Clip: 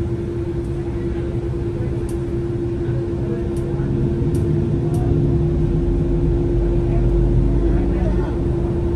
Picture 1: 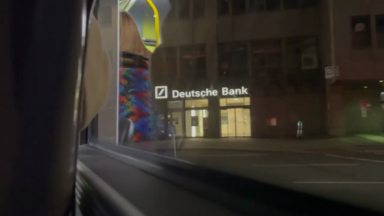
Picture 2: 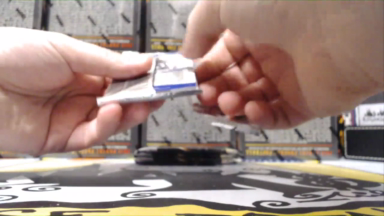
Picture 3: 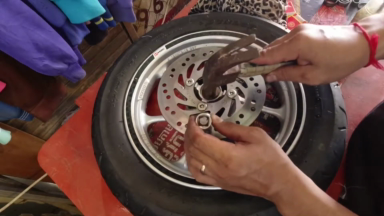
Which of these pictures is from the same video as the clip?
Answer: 1